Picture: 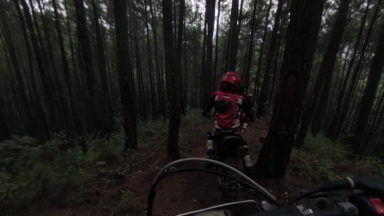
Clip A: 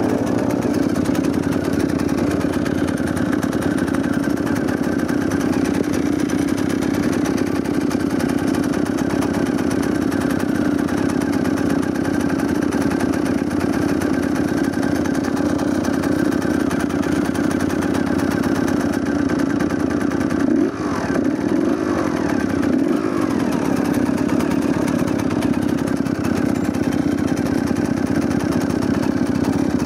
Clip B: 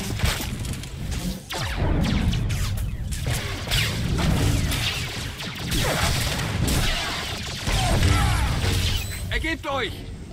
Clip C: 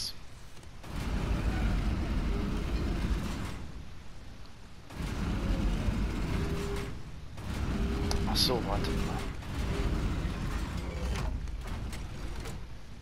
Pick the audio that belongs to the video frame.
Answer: A